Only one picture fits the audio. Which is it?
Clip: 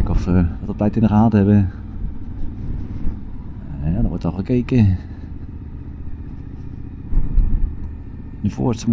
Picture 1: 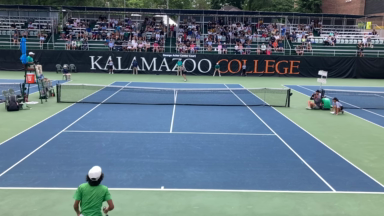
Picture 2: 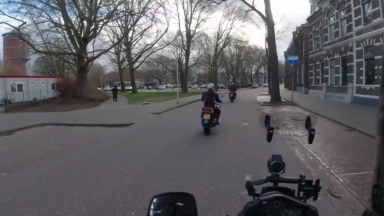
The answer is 2